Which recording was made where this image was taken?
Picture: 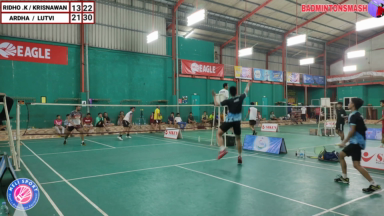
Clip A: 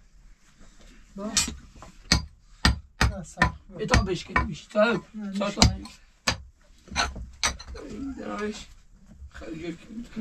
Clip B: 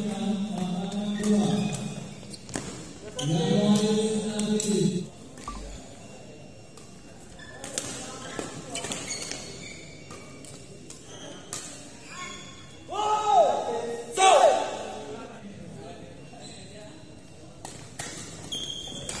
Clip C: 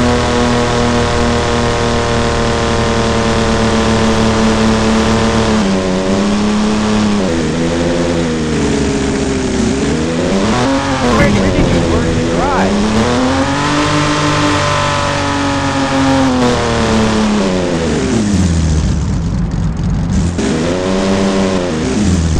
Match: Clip B